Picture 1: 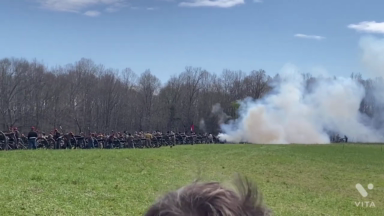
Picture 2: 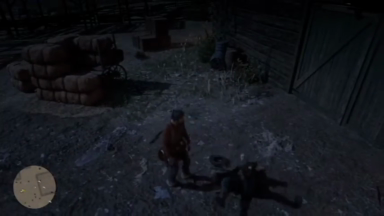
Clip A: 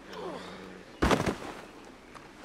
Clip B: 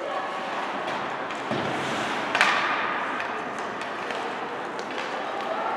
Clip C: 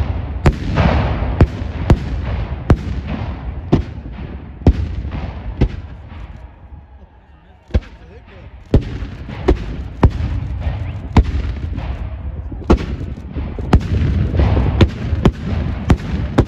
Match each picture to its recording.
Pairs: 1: C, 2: A